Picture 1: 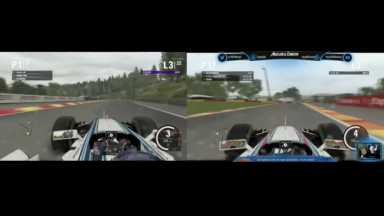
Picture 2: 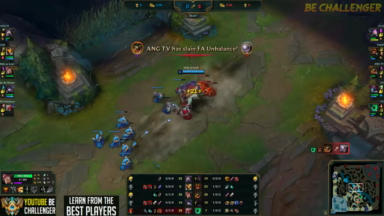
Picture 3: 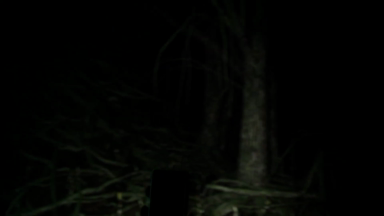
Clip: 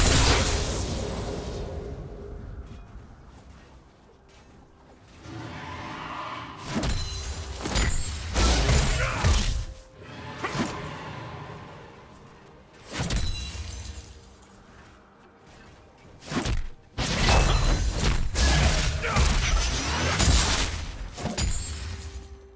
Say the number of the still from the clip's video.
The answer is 2